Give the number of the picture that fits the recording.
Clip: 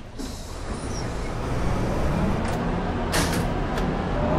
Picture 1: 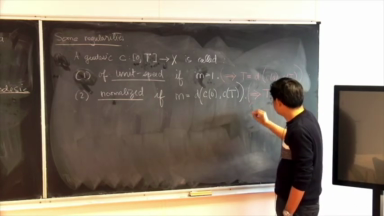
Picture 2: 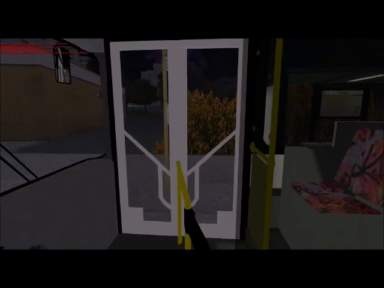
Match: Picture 2